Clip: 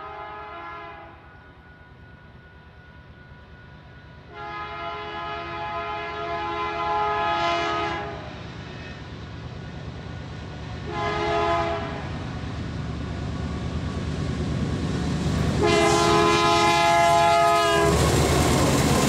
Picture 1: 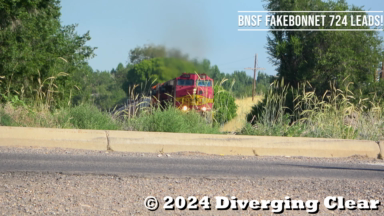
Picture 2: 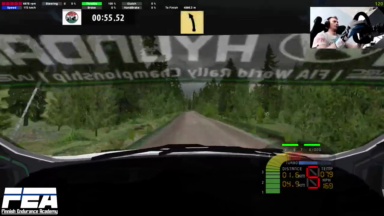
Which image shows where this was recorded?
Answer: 1